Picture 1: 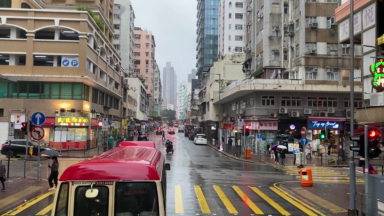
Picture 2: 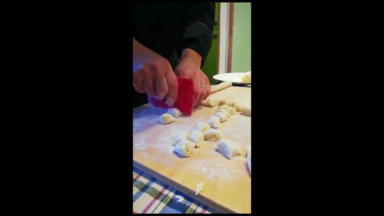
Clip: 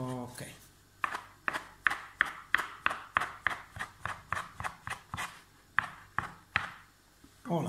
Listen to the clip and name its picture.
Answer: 2